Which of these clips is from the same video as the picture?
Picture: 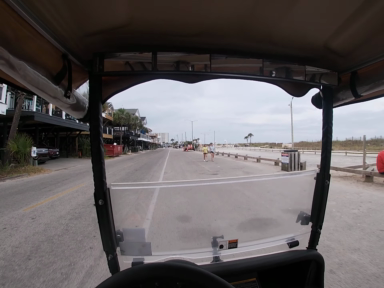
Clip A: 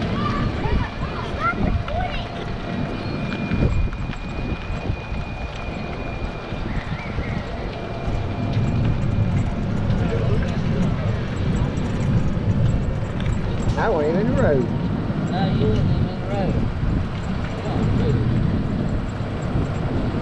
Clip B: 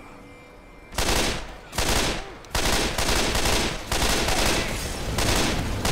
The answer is A